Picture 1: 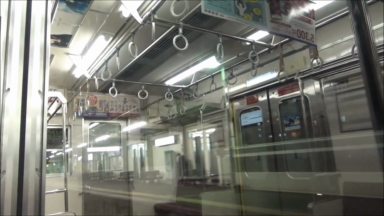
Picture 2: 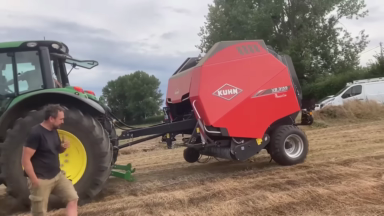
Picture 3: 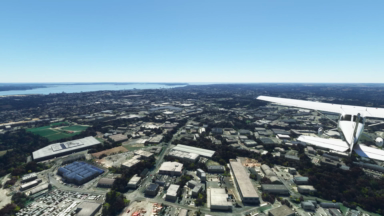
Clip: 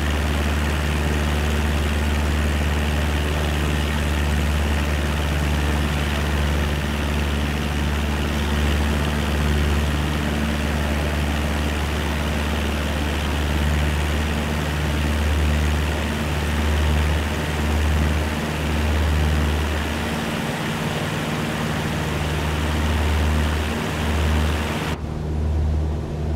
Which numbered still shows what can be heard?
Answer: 3